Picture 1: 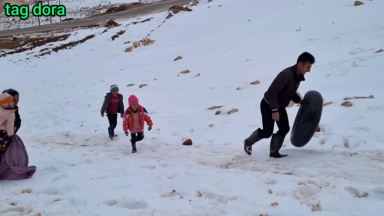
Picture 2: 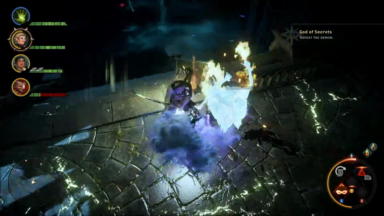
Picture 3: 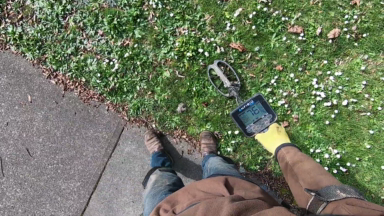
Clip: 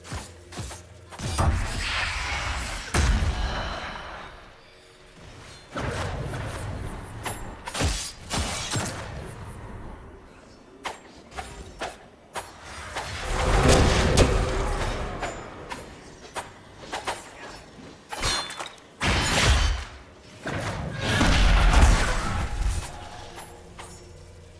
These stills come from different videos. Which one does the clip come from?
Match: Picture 2